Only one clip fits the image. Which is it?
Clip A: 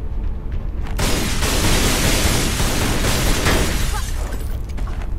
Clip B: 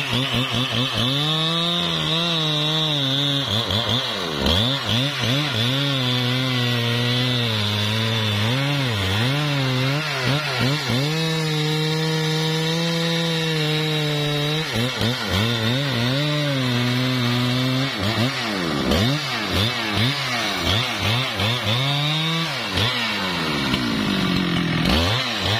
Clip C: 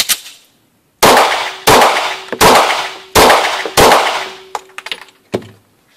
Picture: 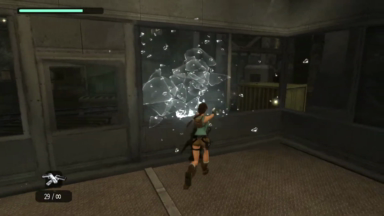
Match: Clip A